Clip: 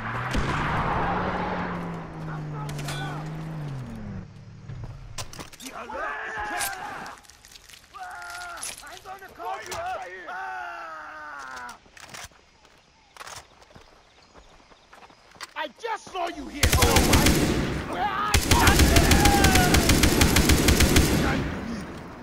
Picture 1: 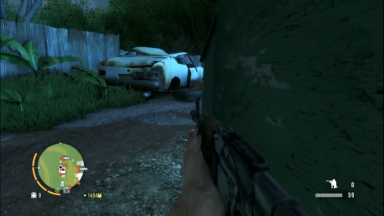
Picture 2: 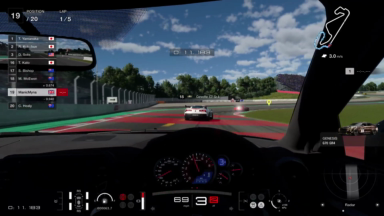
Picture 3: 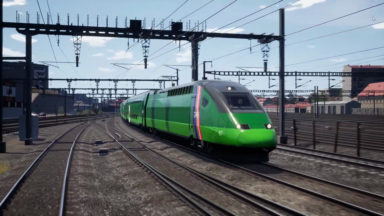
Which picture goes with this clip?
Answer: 1